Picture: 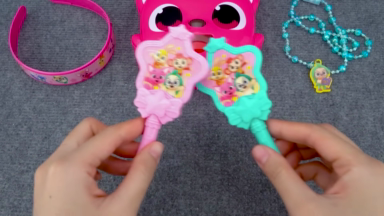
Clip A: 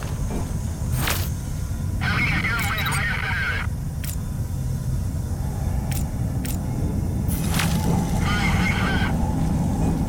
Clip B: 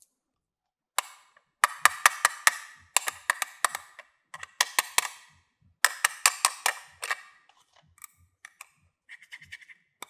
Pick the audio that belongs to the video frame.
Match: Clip B